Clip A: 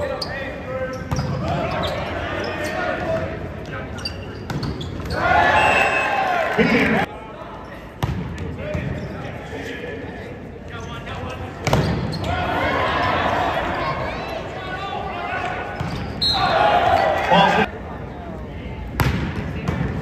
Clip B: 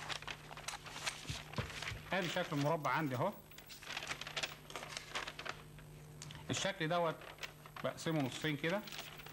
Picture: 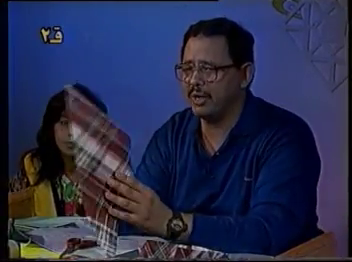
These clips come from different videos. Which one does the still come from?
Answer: B